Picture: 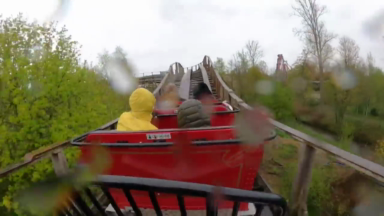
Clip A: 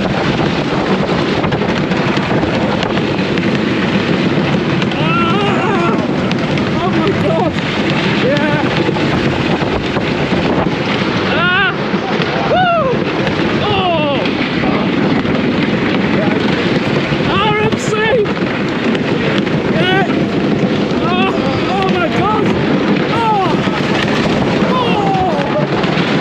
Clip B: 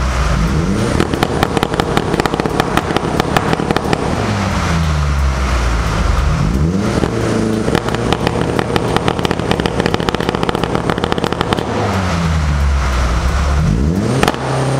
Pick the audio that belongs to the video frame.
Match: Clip A